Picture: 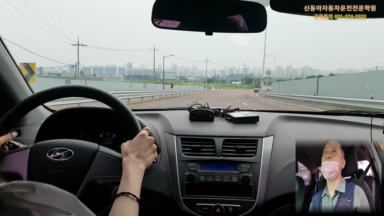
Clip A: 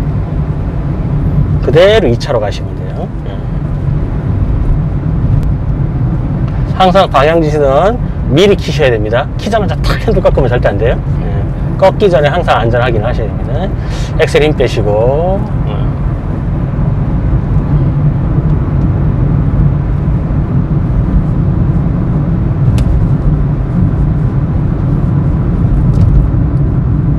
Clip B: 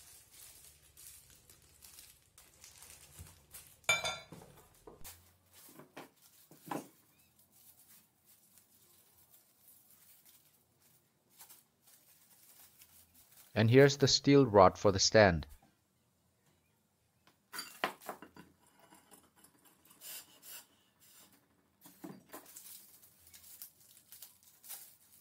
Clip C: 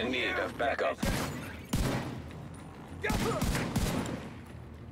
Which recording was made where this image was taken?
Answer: A